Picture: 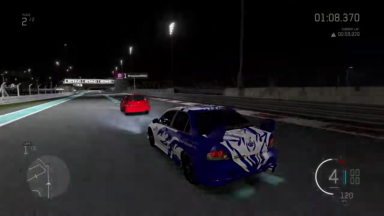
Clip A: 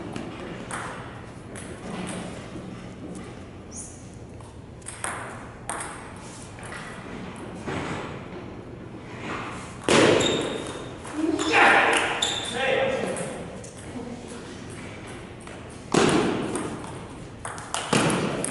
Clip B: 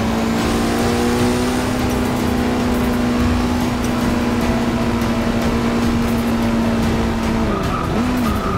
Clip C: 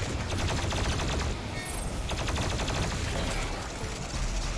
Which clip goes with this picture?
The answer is B